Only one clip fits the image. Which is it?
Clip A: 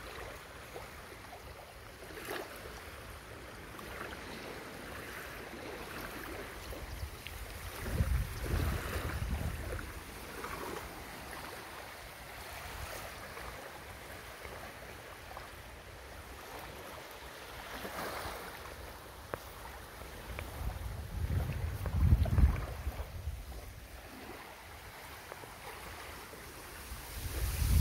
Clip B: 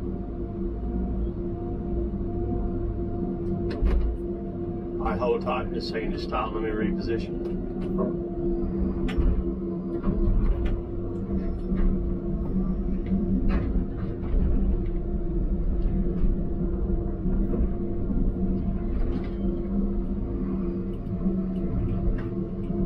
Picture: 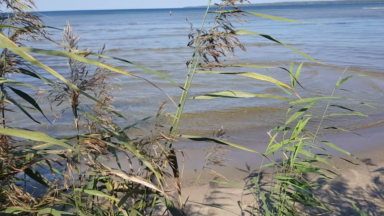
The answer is A